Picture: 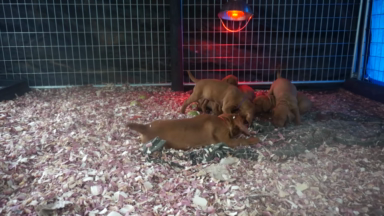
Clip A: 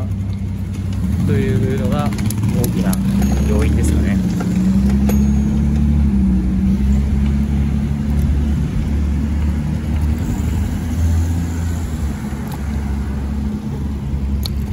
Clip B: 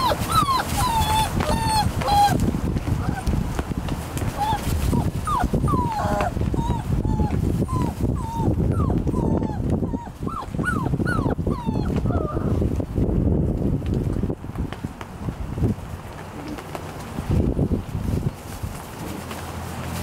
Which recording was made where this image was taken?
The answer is B